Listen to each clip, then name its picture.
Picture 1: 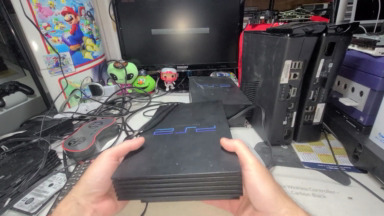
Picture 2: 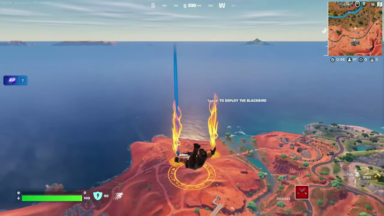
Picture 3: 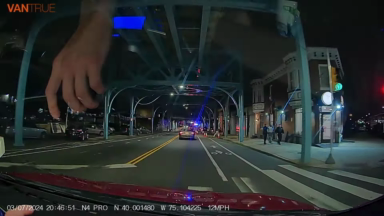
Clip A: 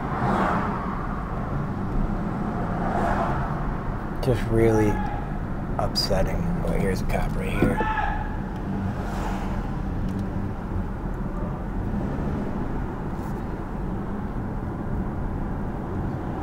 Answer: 3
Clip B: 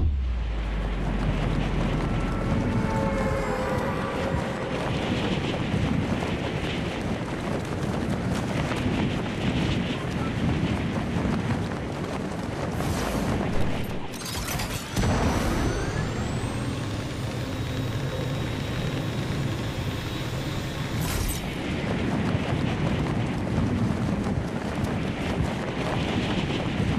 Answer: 2